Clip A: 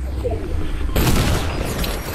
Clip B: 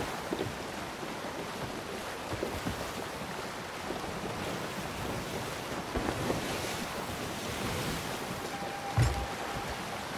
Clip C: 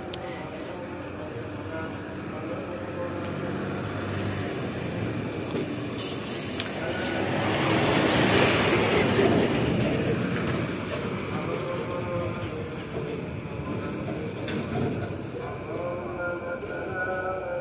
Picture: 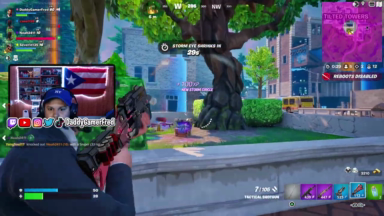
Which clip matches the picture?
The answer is A